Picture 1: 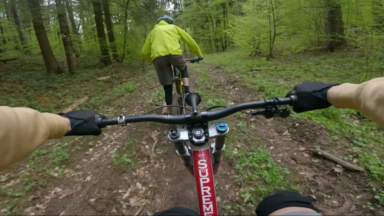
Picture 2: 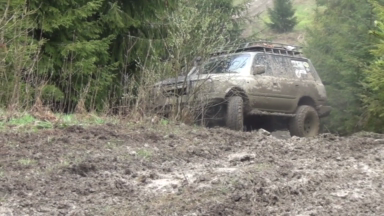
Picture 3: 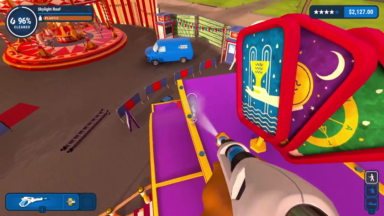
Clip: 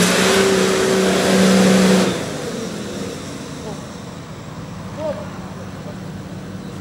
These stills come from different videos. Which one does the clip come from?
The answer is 2